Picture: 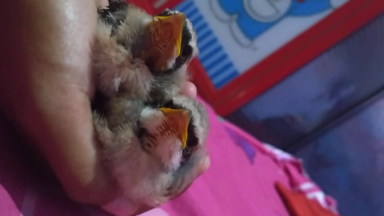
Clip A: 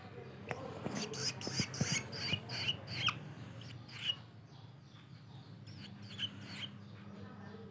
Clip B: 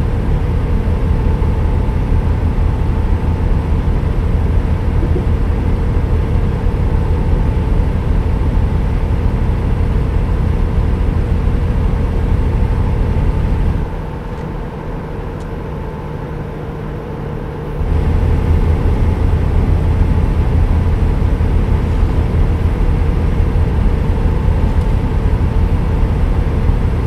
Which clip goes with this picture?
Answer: A